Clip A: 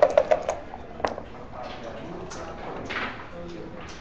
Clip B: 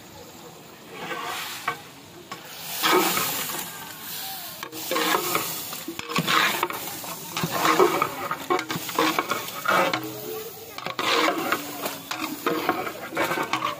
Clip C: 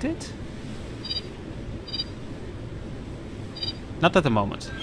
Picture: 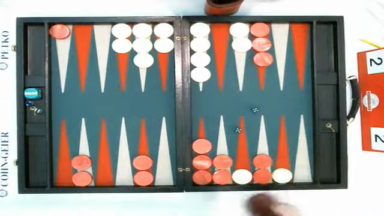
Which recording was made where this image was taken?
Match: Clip A